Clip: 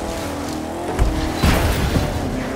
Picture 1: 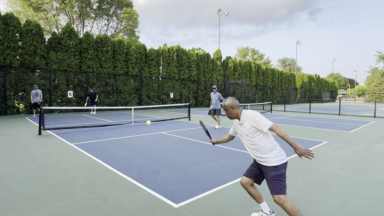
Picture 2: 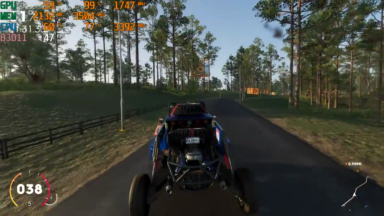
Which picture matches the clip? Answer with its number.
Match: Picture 2